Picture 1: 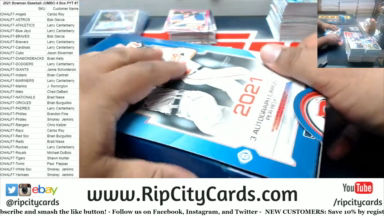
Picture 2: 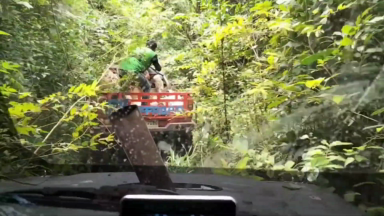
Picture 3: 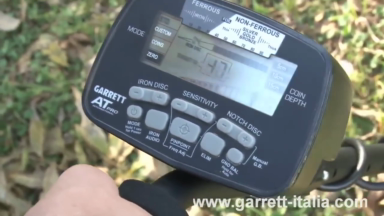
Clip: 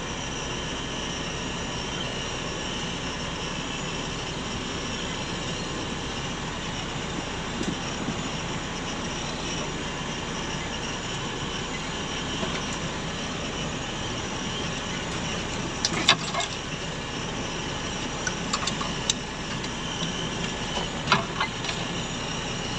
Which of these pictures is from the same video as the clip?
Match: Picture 2